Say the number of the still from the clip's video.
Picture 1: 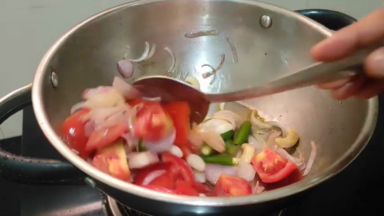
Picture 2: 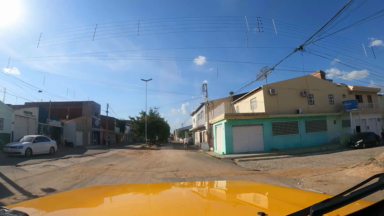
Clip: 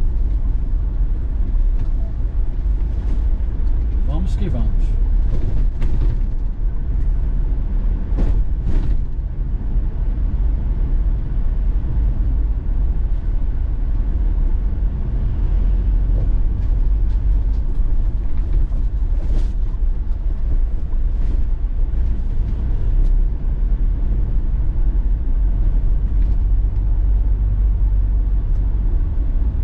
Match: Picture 2